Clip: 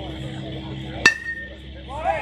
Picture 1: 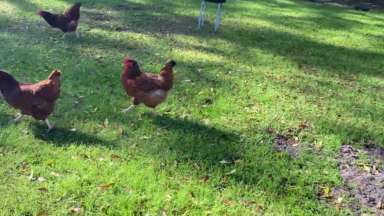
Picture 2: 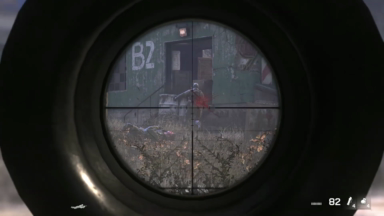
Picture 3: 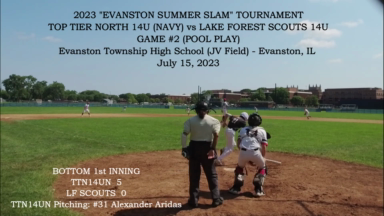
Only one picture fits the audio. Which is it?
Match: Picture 3